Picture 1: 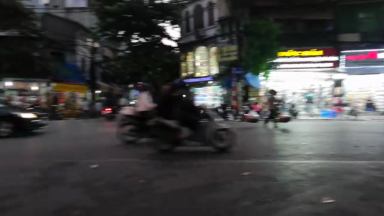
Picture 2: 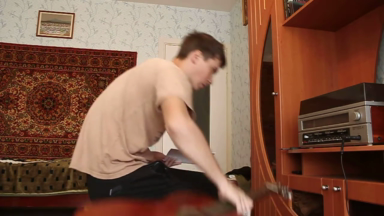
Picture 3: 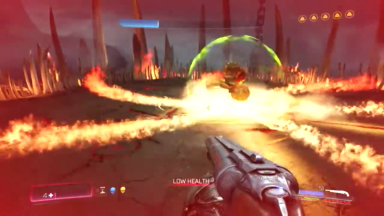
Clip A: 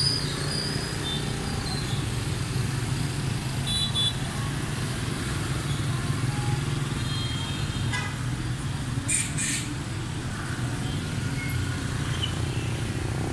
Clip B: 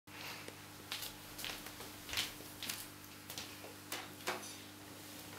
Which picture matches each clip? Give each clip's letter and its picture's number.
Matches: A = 1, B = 2